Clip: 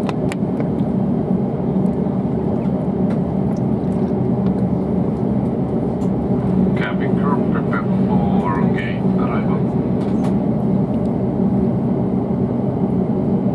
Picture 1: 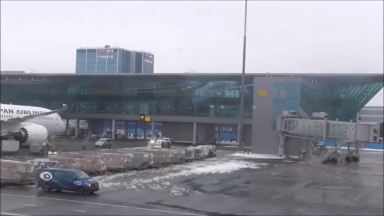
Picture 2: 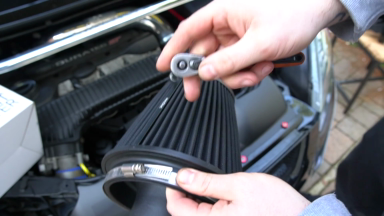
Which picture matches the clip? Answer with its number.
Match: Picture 1